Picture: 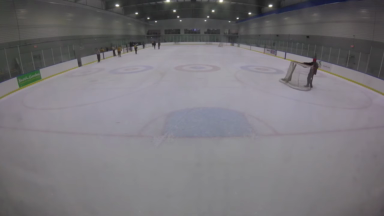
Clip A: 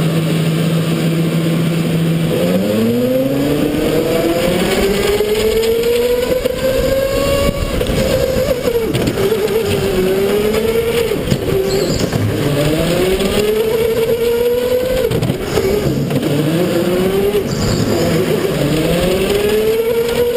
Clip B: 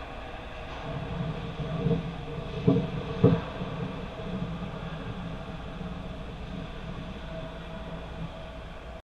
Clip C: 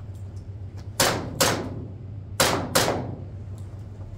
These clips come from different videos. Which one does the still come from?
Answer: B